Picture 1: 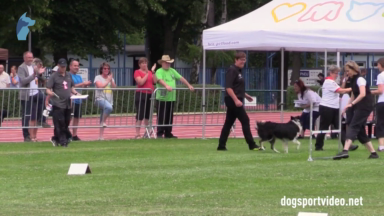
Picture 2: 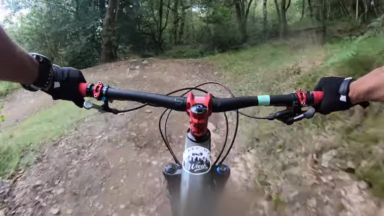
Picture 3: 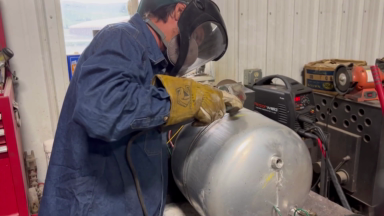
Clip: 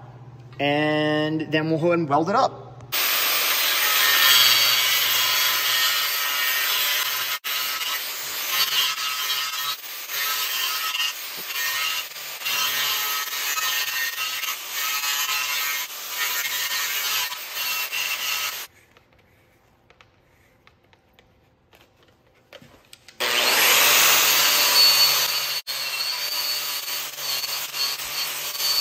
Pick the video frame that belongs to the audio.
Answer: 3